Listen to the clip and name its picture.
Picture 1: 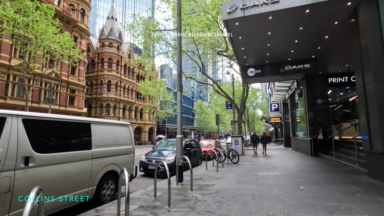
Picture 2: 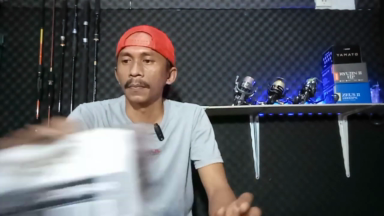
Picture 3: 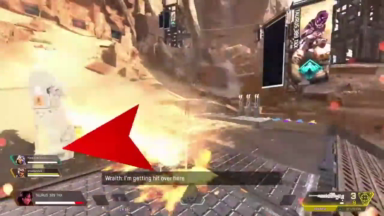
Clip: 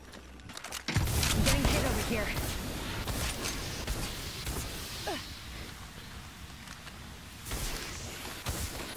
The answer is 3